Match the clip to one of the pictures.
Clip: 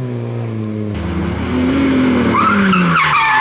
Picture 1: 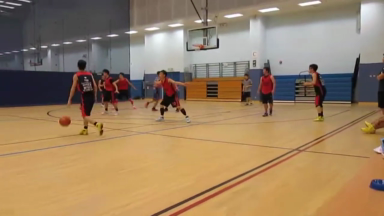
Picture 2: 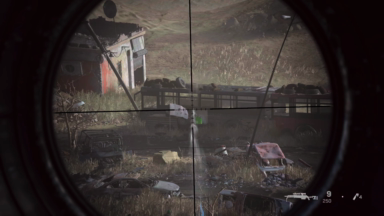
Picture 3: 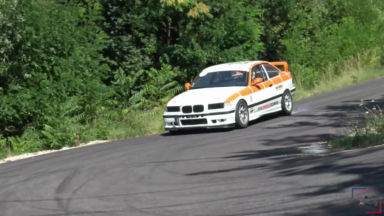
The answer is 3